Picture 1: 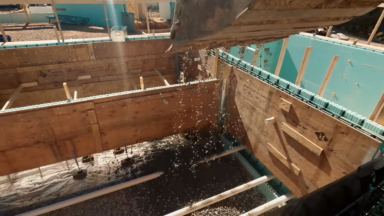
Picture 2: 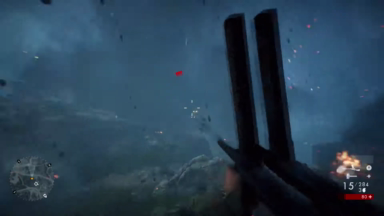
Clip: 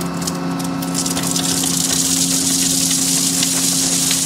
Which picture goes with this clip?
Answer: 1